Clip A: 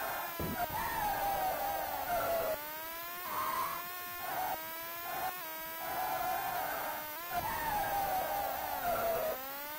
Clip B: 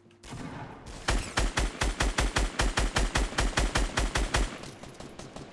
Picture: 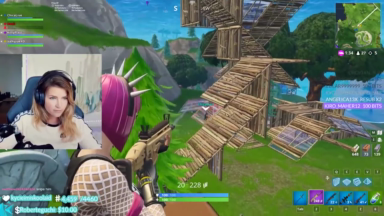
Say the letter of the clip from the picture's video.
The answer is B